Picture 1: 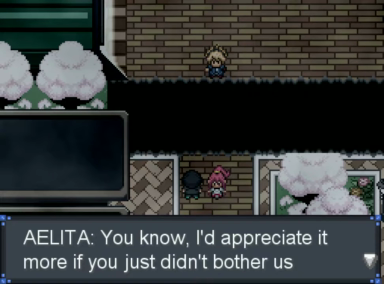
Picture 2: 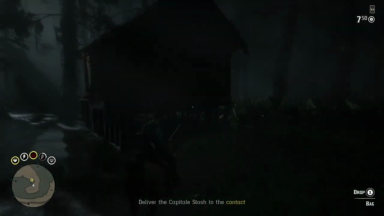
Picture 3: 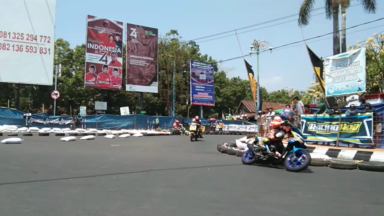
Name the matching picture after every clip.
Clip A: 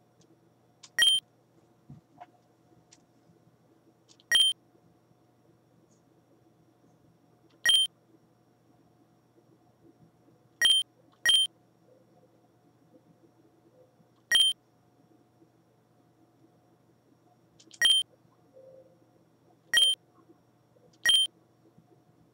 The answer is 1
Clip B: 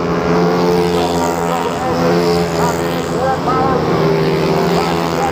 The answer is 3